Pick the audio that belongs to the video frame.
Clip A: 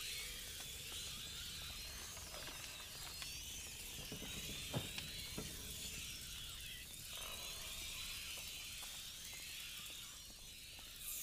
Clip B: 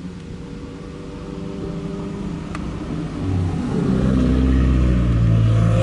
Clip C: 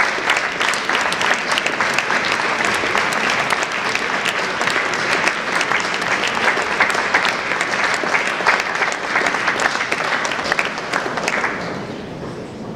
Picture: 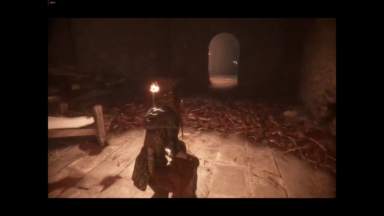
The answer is A